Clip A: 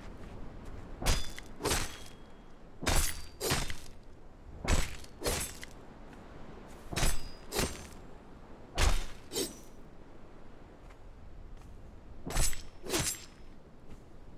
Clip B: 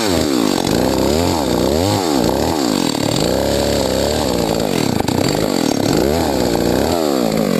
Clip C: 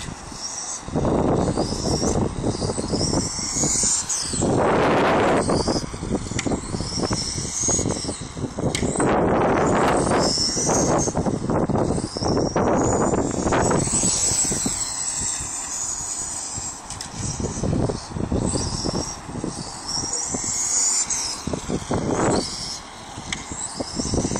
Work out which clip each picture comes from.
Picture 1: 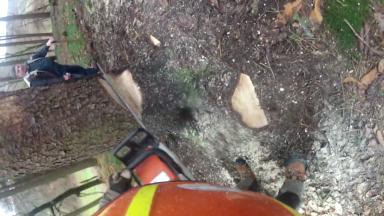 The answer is B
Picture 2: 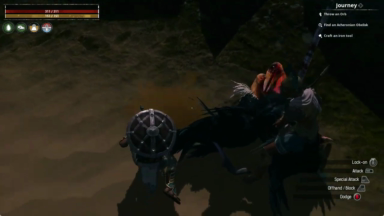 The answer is A